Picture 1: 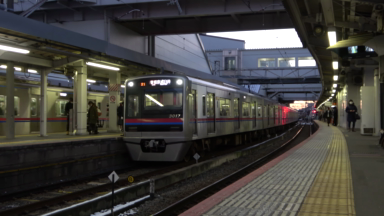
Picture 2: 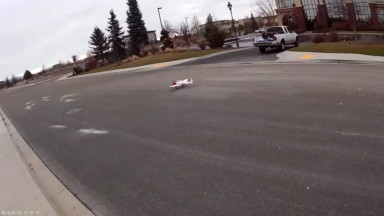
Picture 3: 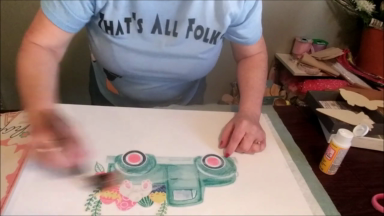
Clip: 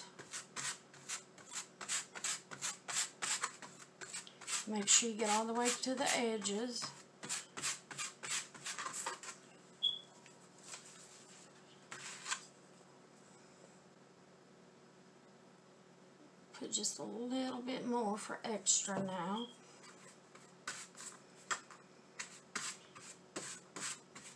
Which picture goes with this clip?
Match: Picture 3